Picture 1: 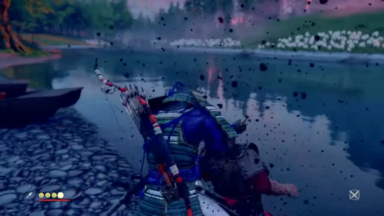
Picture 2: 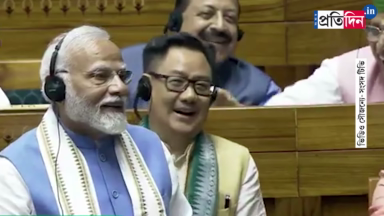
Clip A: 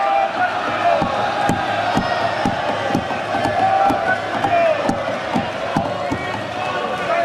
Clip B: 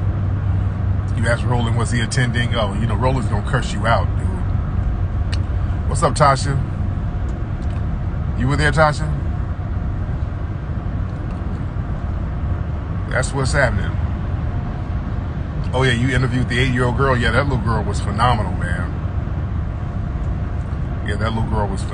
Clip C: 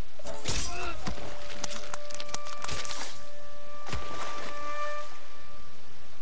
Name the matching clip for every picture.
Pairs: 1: C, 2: A